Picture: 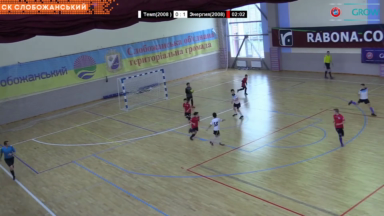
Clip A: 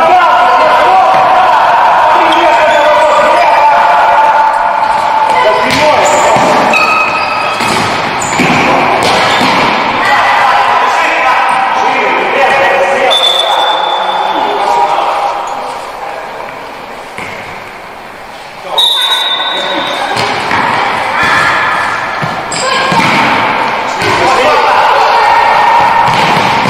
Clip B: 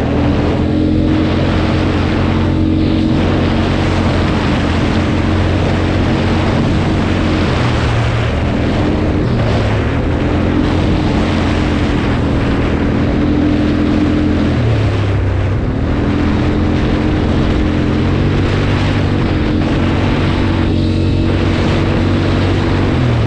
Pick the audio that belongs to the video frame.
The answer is A